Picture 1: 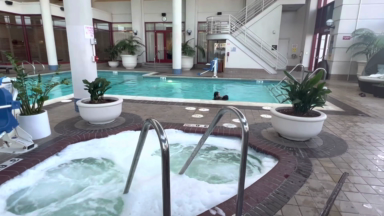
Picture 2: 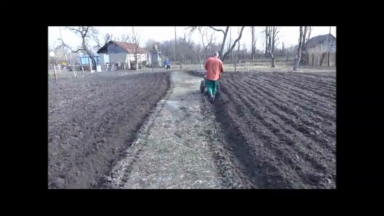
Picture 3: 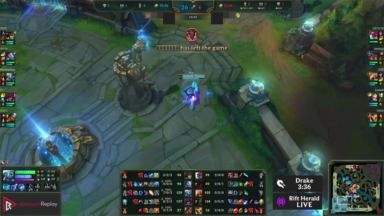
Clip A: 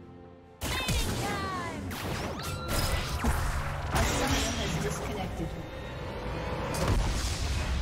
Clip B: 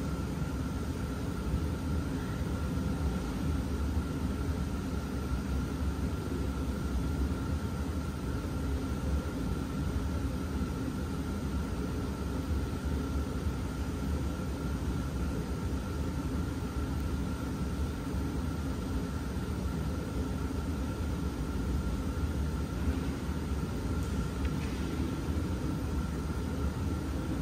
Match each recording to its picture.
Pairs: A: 3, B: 1